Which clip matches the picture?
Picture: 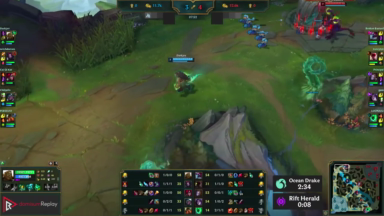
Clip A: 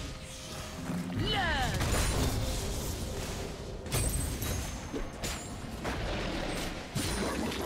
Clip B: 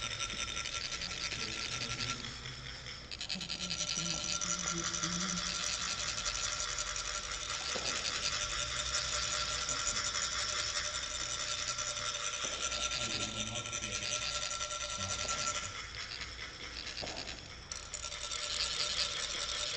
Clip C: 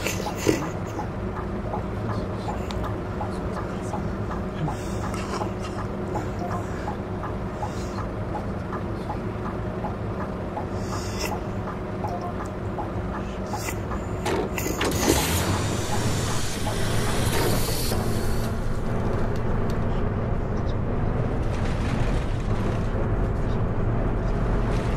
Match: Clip A